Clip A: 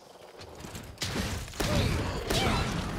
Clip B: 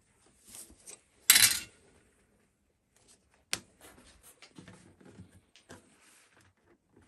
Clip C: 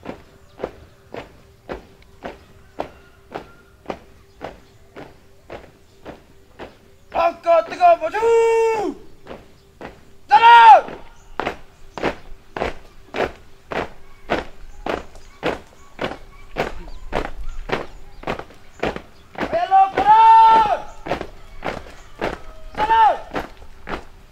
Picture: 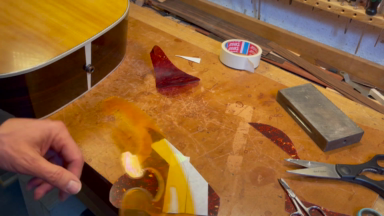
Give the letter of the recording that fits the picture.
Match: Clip B